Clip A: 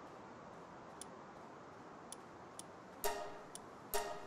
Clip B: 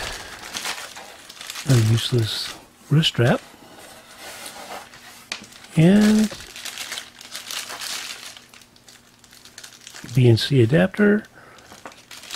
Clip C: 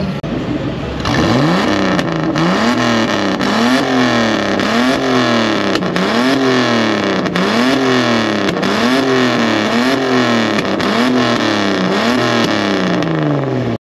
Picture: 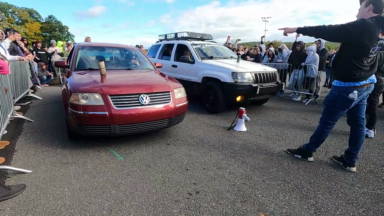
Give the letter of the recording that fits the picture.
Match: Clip C